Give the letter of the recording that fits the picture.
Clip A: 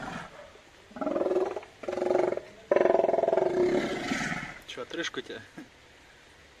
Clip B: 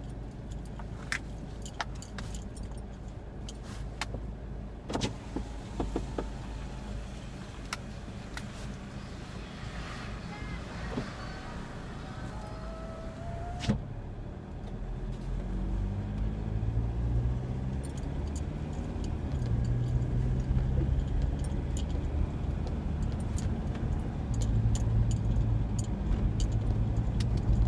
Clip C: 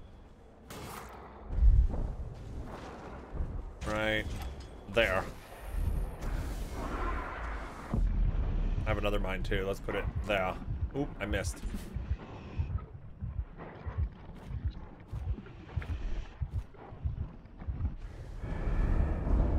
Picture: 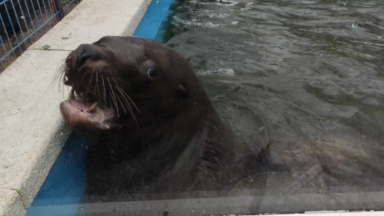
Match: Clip A